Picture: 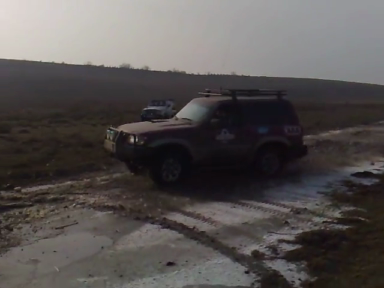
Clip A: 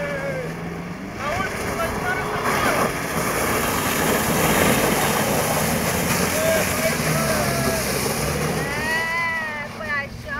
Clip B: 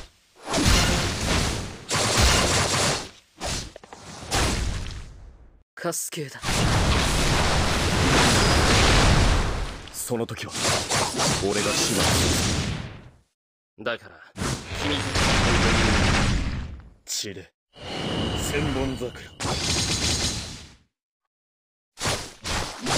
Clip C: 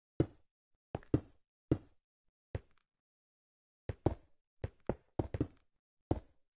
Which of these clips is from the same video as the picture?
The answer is A